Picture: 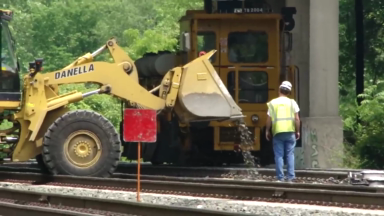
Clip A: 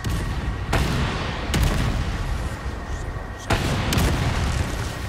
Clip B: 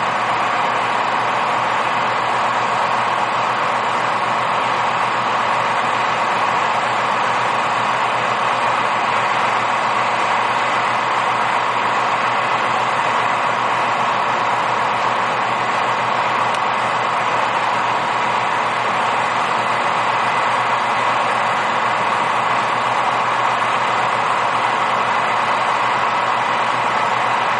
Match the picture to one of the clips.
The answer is B